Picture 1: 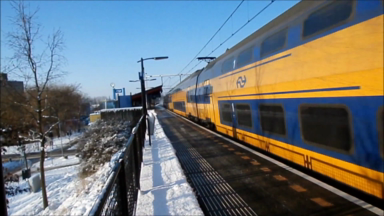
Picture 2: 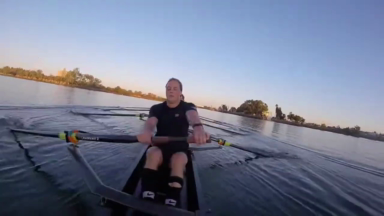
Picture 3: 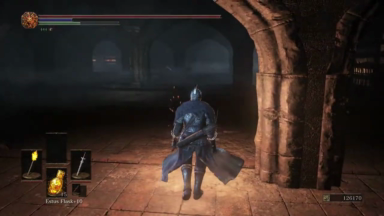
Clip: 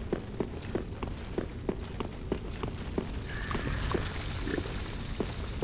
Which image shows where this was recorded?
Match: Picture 3